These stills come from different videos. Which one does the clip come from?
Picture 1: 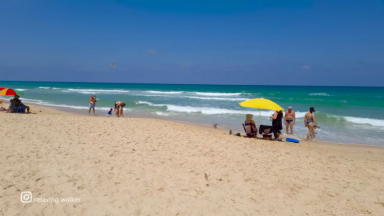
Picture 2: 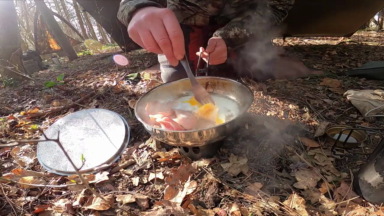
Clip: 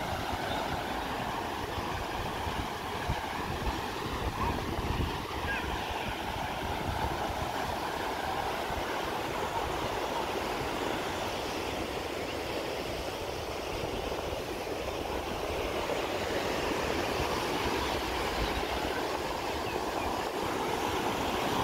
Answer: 1